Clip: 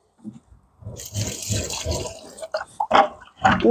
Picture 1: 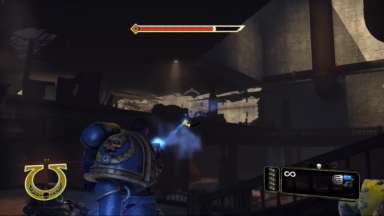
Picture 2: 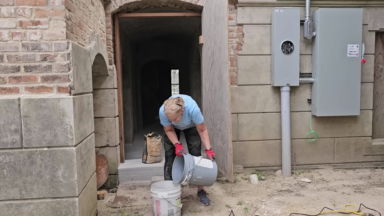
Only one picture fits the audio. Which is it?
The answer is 2